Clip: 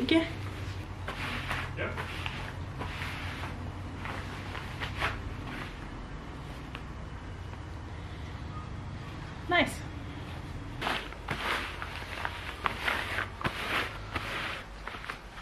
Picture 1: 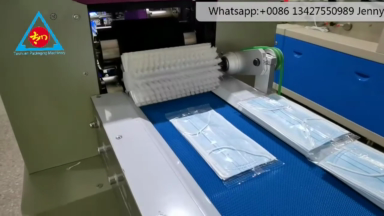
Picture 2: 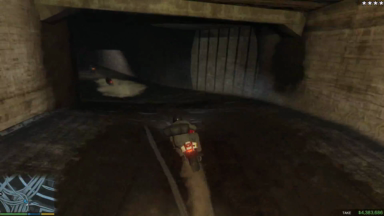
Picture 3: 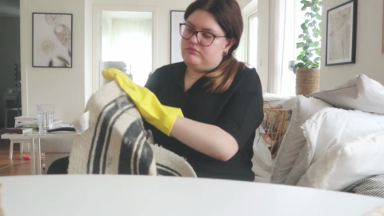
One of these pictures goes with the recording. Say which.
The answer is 3